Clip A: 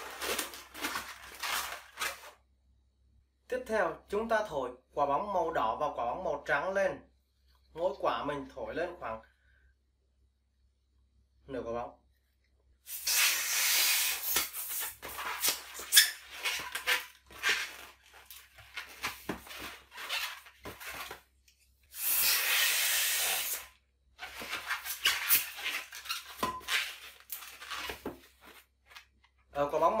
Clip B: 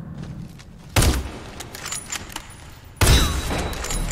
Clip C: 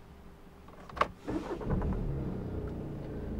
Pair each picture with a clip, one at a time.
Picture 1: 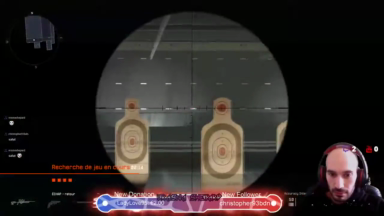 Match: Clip B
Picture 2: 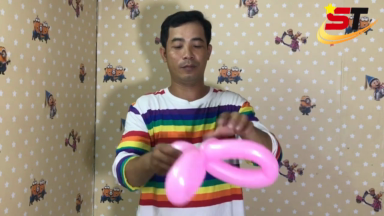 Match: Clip A